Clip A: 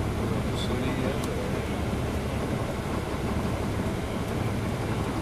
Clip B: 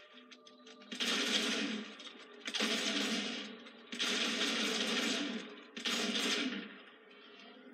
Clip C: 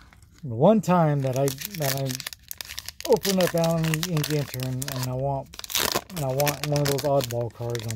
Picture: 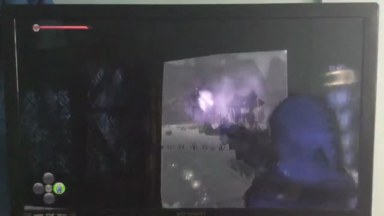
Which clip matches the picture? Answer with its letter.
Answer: B